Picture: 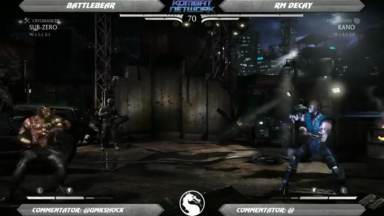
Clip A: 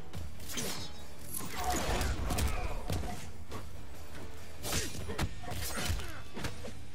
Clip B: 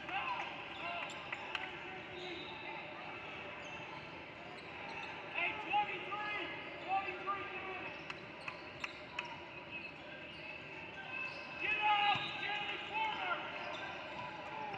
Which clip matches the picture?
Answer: A